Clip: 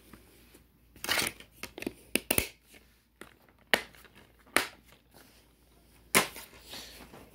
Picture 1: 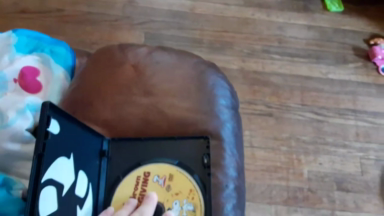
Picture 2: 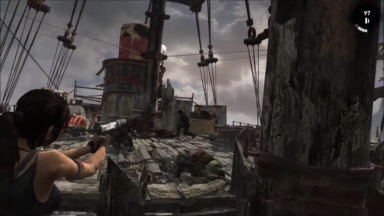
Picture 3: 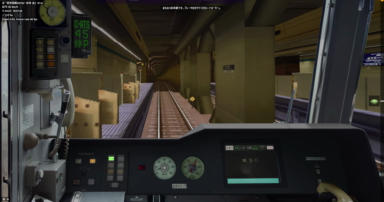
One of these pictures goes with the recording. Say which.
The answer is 1